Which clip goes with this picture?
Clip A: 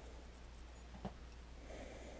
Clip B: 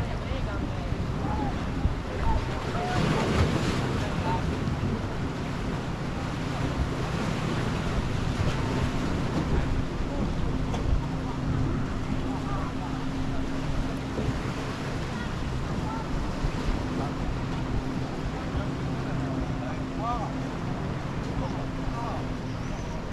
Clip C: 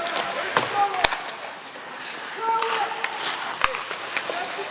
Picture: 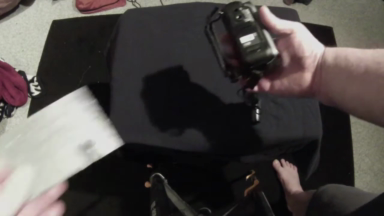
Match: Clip A